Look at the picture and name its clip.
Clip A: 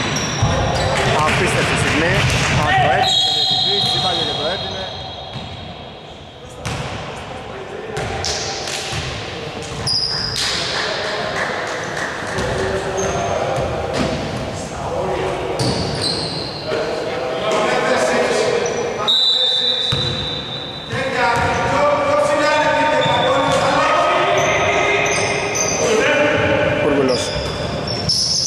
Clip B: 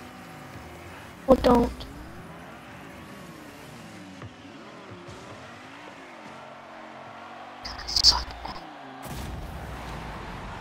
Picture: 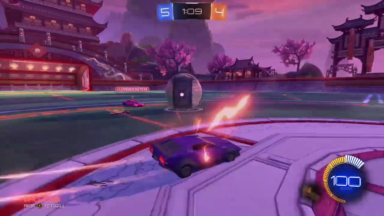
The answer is B